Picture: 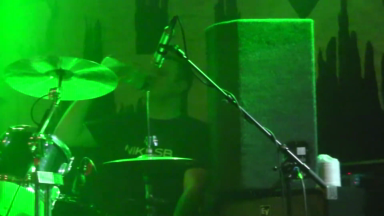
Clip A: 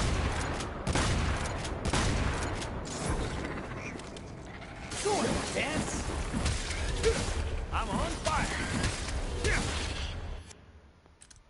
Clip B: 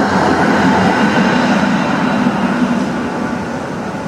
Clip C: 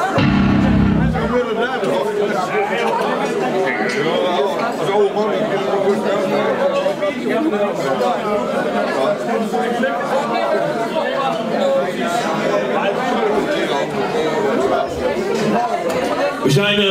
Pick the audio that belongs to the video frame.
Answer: C